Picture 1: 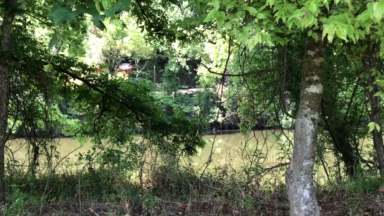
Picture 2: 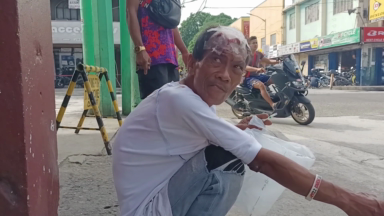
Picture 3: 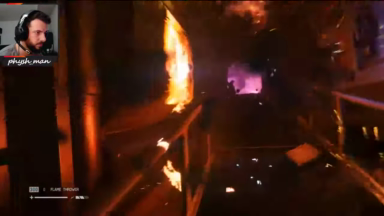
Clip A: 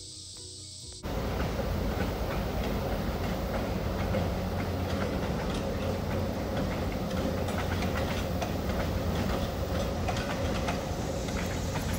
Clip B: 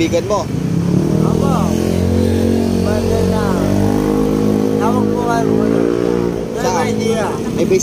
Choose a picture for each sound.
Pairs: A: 1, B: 2